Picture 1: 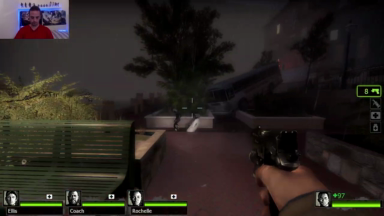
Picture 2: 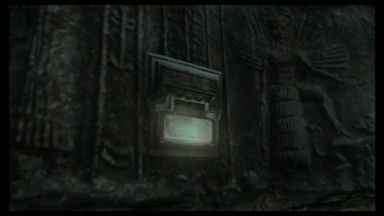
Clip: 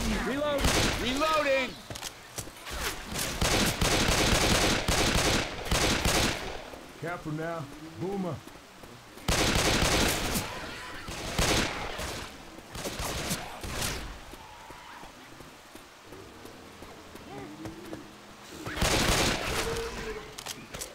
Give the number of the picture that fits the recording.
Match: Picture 1